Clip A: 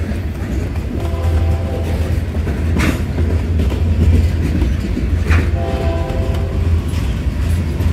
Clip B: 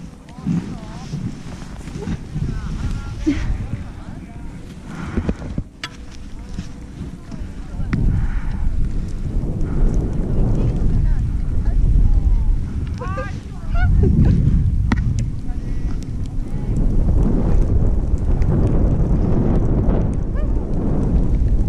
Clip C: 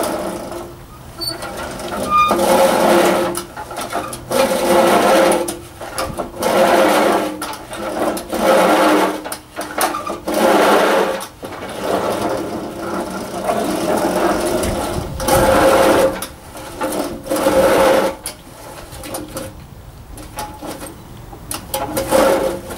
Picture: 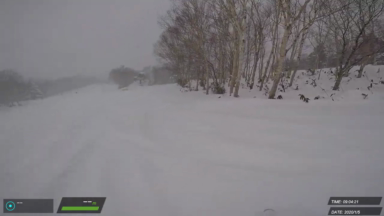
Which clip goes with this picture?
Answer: B